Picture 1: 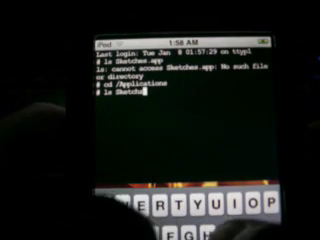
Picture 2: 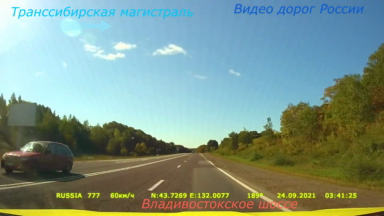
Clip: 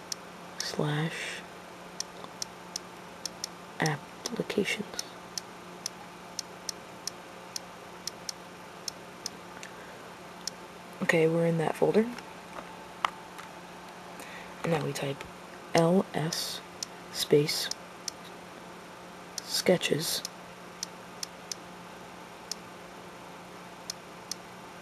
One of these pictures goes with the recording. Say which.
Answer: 1